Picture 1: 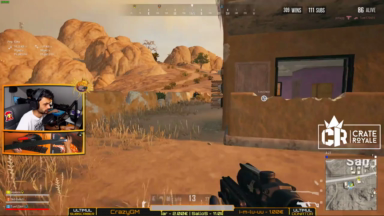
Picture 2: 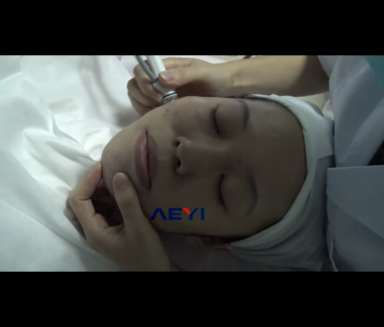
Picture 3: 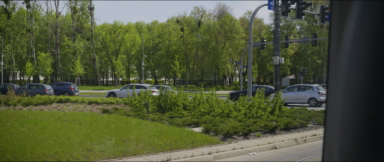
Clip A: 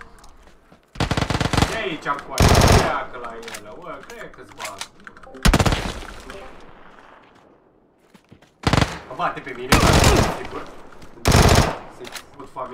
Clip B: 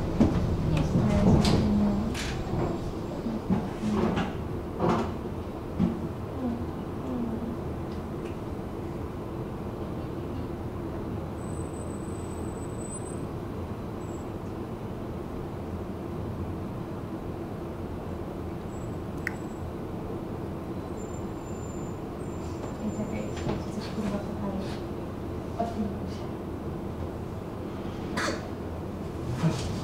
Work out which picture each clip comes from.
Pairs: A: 1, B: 3